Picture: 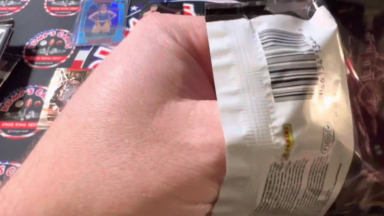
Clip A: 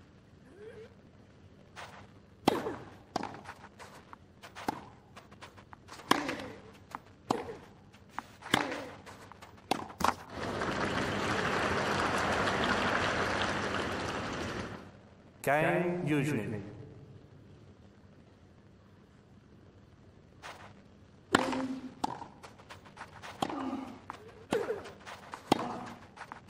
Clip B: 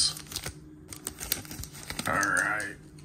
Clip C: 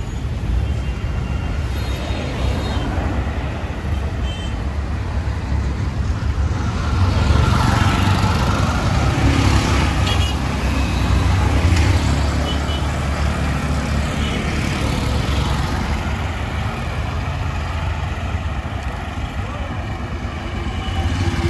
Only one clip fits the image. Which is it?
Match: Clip B